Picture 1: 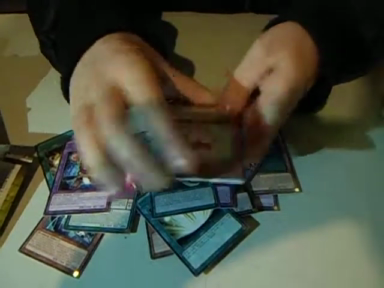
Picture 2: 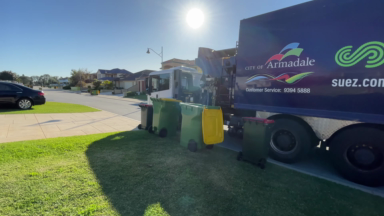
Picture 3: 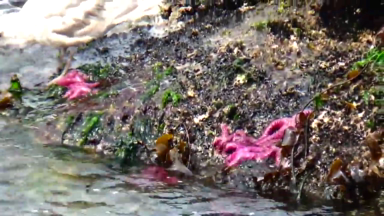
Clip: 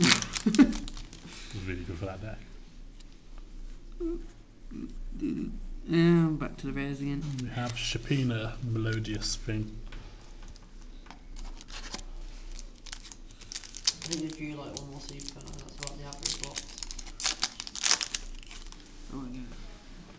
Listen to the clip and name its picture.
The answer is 1